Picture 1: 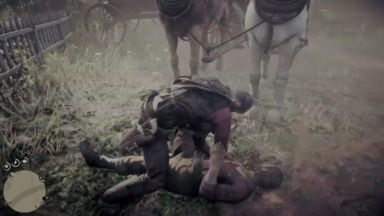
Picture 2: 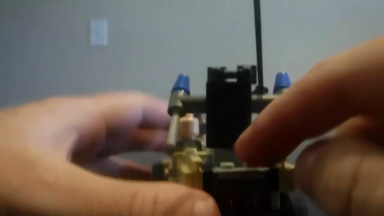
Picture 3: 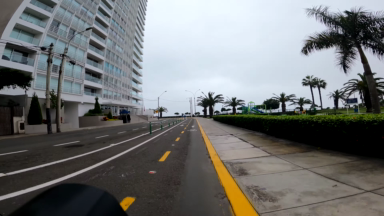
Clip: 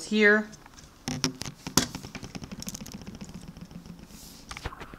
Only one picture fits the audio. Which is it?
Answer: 2